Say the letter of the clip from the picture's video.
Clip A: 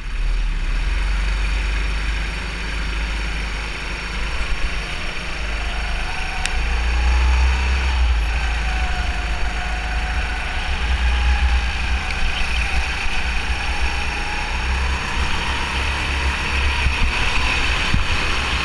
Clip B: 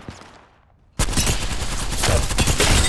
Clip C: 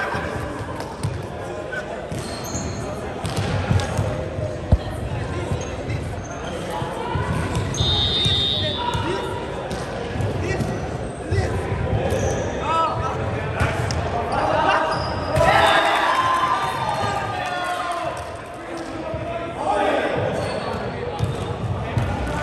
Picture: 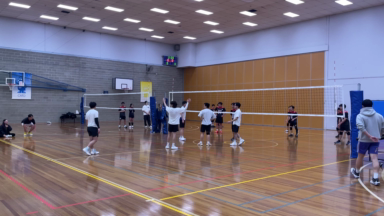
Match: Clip C